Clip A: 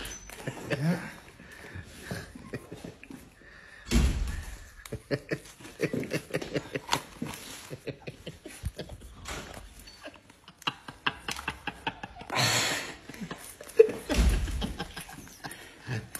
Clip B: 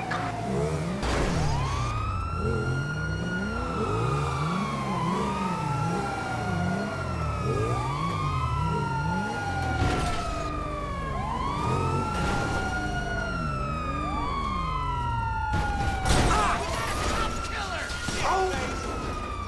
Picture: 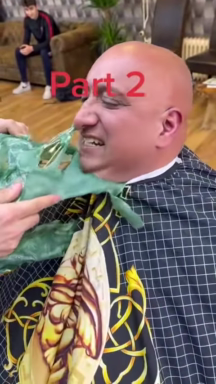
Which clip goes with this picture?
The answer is A